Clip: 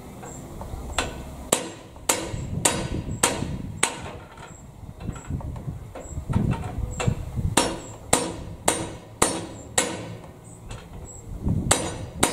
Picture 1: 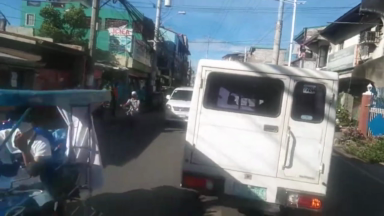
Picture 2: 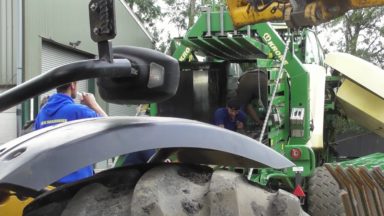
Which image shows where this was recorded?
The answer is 2